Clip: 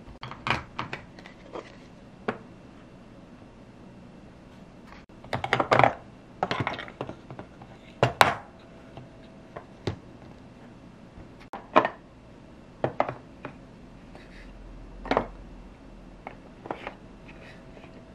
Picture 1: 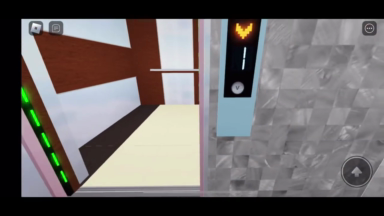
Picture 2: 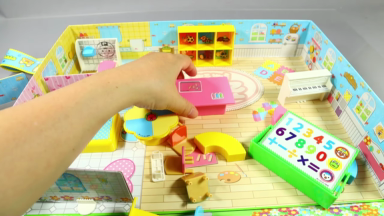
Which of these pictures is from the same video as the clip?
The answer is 2